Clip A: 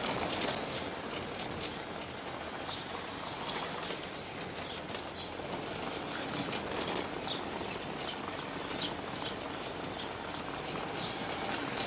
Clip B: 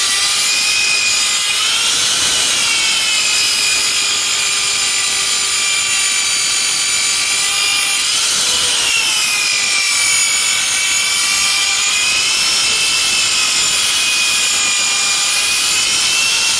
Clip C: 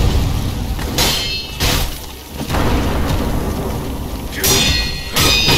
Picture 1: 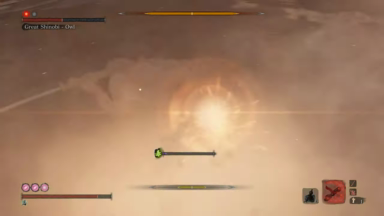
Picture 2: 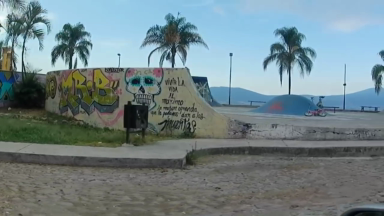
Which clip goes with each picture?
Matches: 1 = C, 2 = A